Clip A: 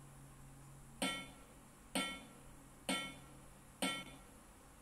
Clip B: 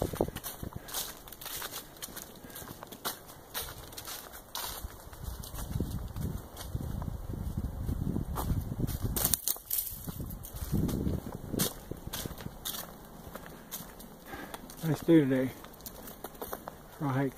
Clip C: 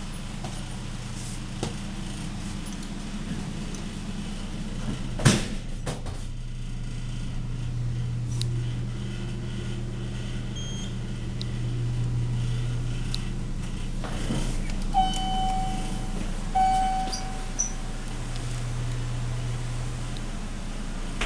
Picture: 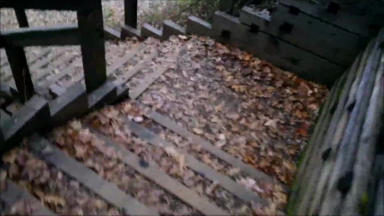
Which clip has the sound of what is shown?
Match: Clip B